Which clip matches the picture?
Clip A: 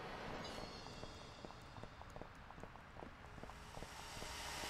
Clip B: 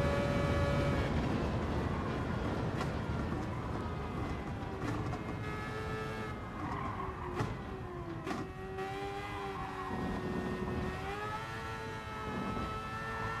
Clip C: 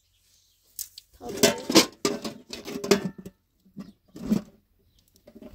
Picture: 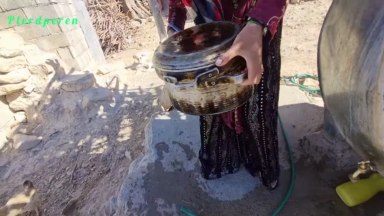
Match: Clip C